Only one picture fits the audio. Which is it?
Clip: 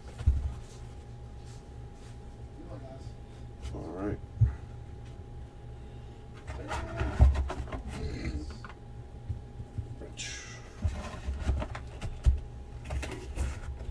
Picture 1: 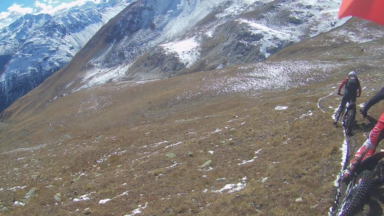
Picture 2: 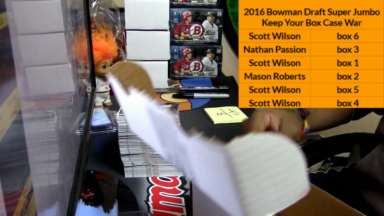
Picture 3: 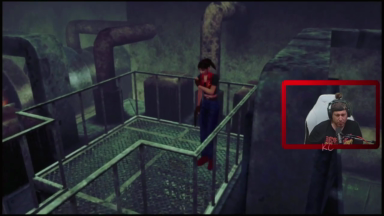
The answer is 2